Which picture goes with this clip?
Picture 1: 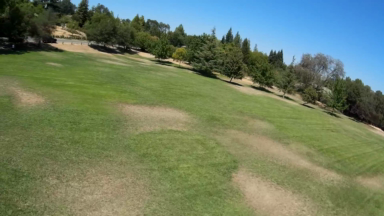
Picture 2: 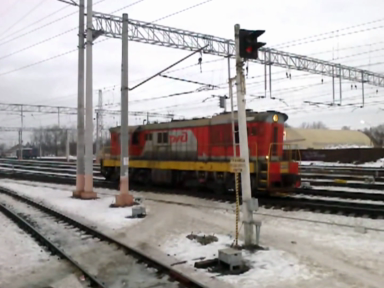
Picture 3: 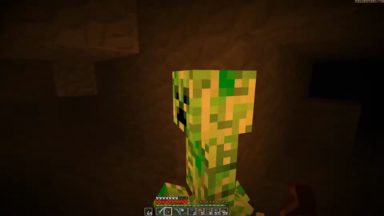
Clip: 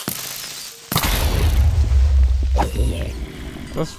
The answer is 3